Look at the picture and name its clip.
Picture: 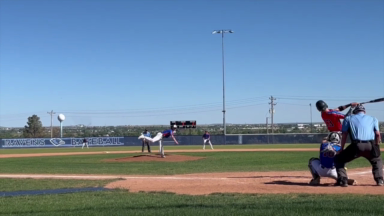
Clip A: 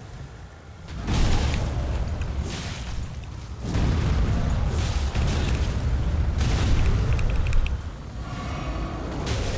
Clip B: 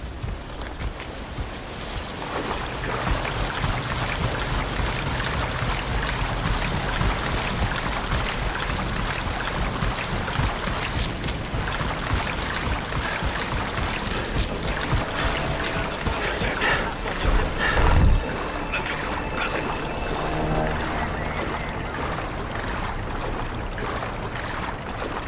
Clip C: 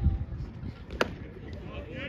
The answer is C